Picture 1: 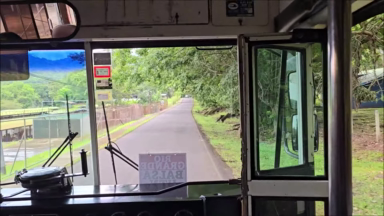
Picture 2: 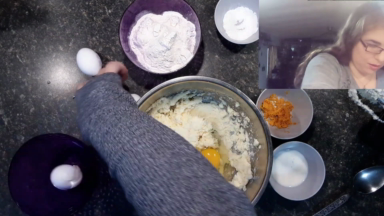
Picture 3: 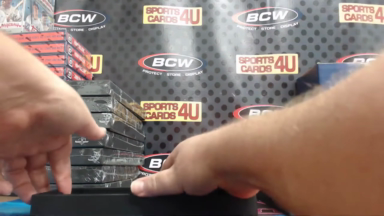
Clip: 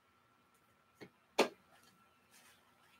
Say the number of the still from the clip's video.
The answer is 3